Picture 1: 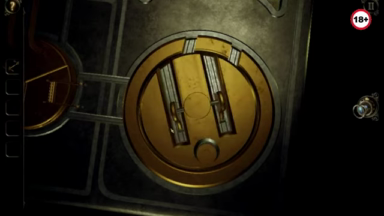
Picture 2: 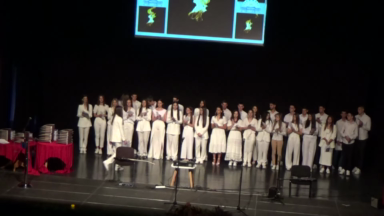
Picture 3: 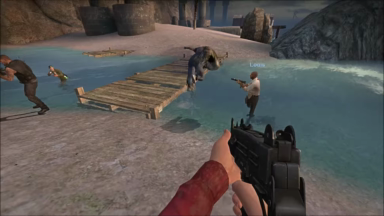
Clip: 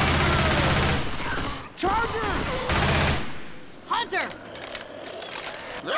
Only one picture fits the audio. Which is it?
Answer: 3